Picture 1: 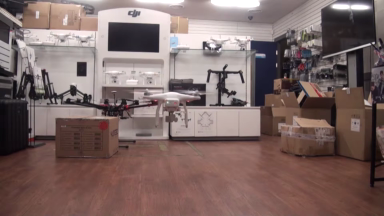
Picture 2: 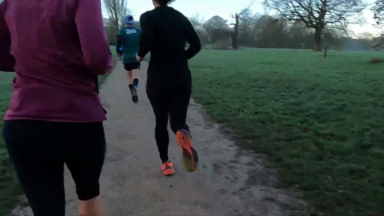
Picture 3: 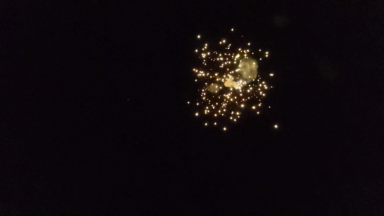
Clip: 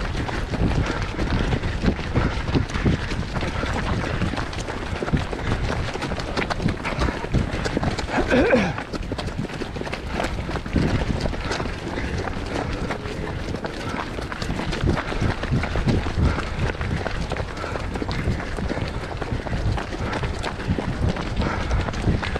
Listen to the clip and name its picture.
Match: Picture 2